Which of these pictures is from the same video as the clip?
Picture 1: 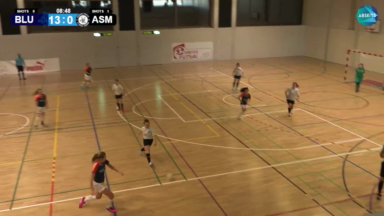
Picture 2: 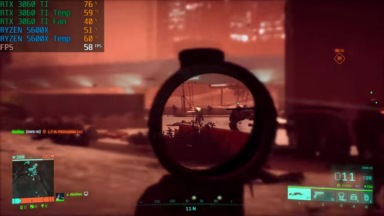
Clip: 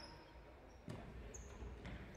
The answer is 1